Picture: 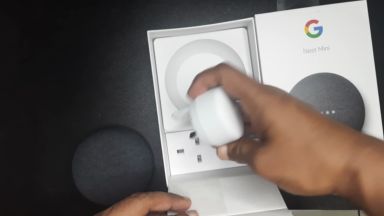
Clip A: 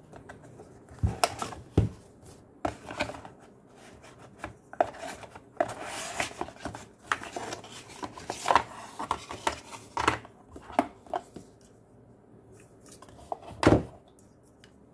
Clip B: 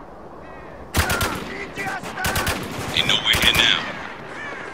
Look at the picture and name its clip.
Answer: A